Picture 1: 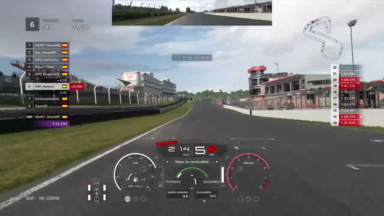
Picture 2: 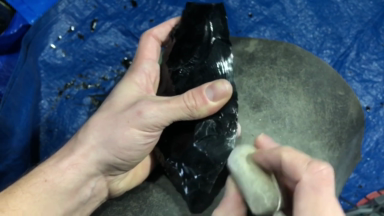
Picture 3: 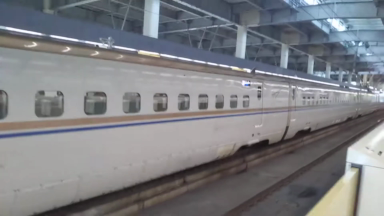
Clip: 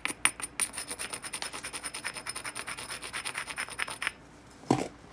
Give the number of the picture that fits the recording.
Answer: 2